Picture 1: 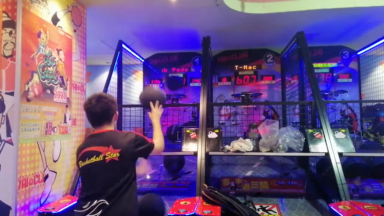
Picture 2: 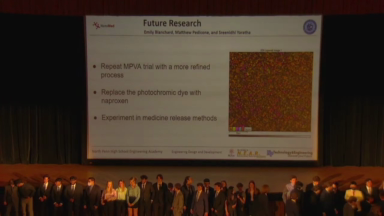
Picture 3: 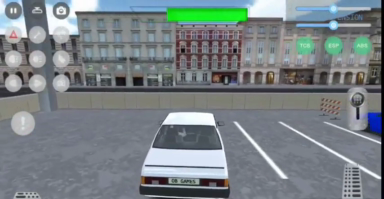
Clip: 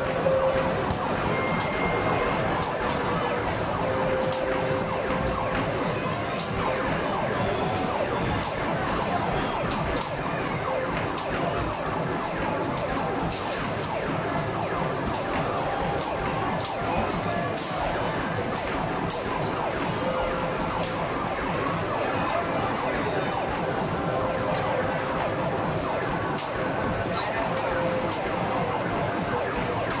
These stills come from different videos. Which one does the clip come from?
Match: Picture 1